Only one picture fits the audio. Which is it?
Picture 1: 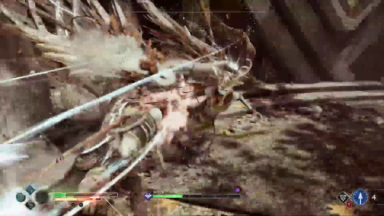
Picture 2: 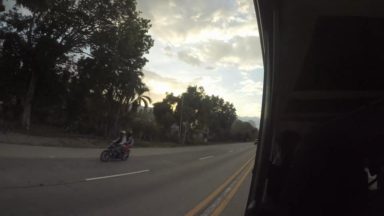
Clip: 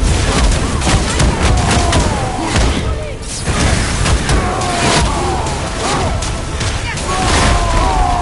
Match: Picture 1